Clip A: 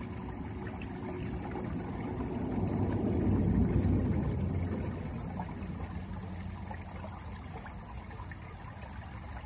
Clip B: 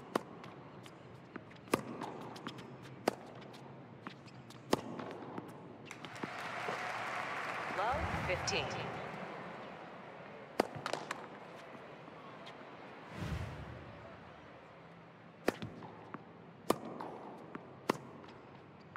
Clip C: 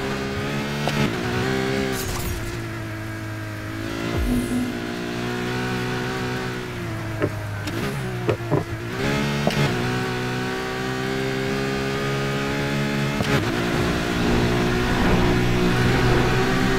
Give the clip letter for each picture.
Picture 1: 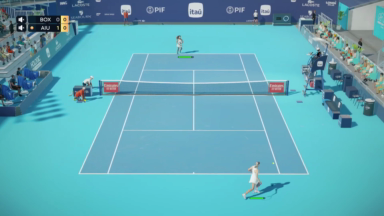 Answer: B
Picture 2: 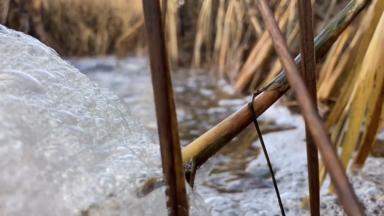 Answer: A